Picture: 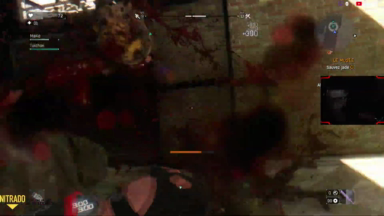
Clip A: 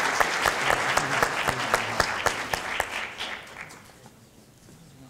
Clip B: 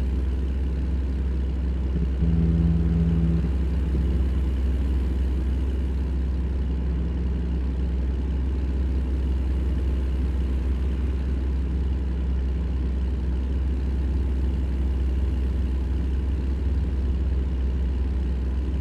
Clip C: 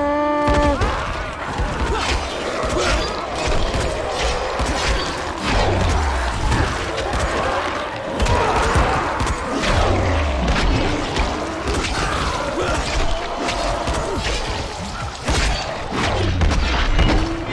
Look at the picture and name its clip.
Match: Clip C